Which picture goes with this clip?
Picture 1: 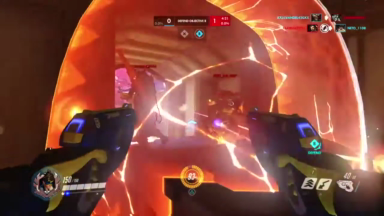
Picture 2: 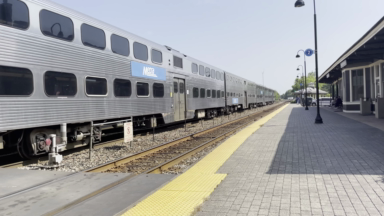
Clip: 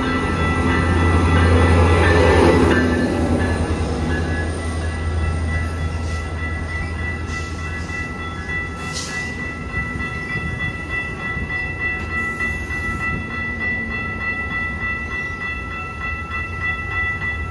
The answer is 2